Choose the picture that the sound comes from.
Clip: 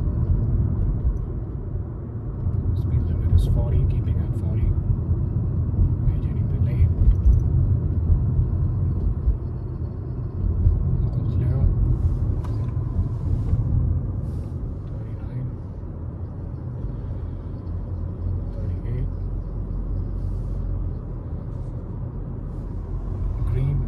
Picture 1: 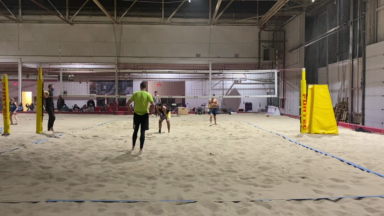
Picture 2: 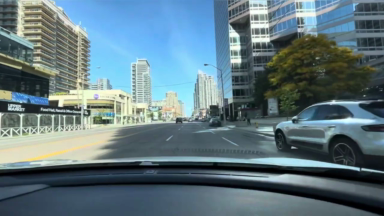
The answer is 2